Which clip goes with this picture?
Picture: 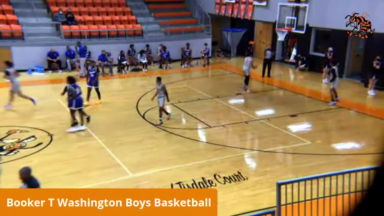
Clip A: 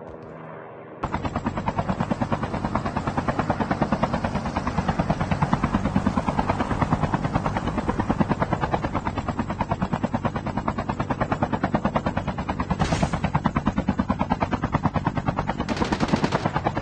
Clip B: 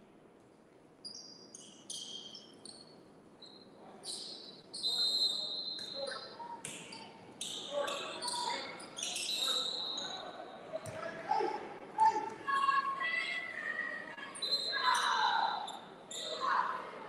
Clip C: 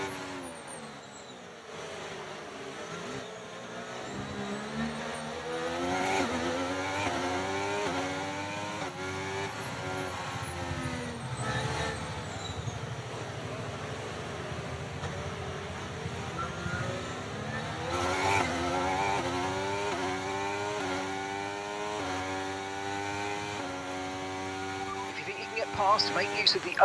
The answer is B